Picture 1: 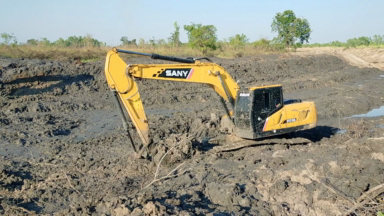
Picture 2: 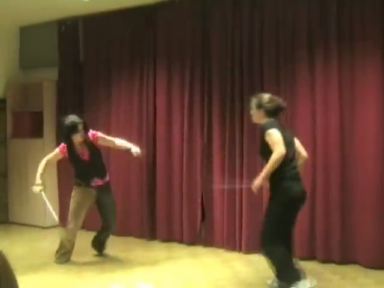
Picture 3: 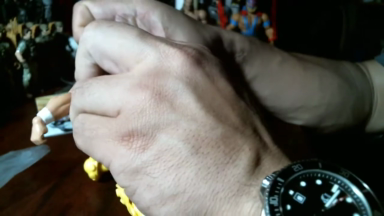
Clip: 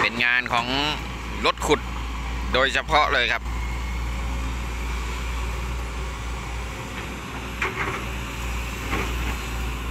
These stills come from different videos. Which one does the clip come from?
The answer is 1